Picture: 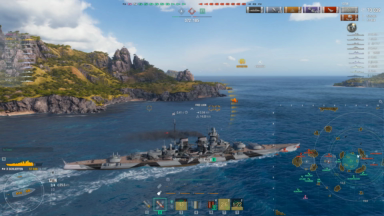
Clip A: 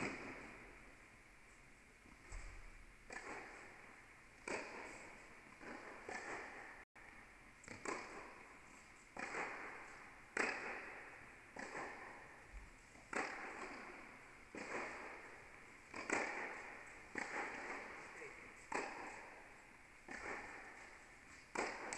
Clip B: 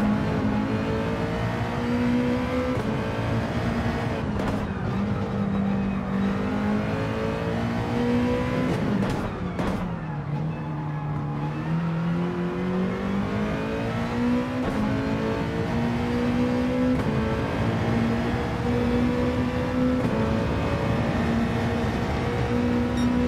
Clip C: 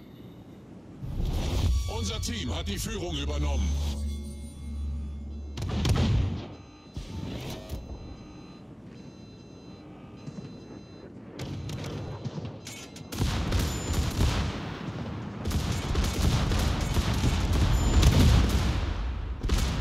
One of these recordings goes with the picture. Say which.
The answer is C